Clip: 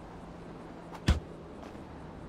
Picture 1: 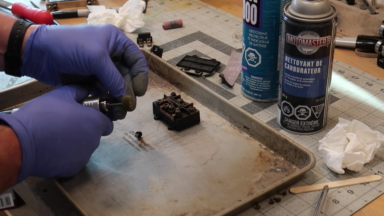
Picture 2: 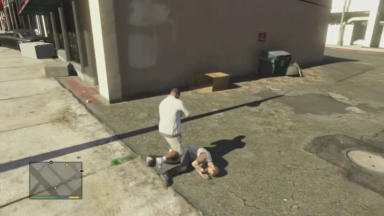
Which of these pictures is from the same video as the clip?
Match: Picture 2